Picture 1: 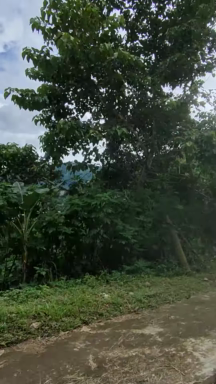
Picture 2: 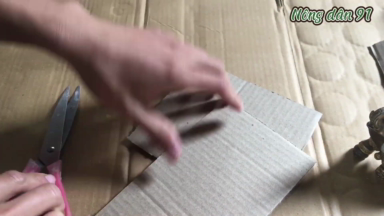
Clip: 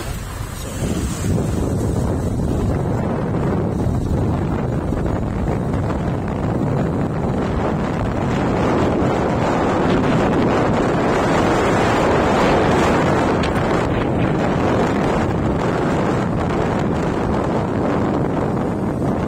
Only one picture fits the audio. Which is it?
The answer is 1